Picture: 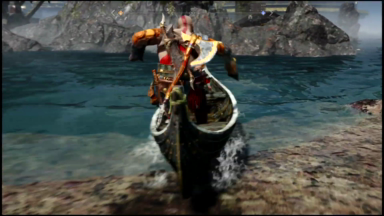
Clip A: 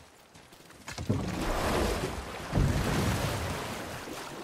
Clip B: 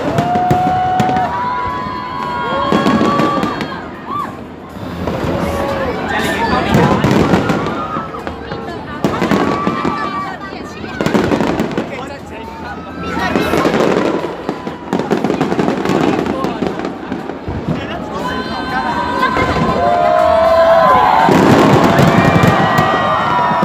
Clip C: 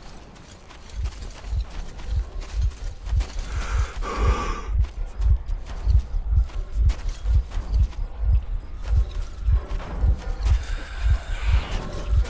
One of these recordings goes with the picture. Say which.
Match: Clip A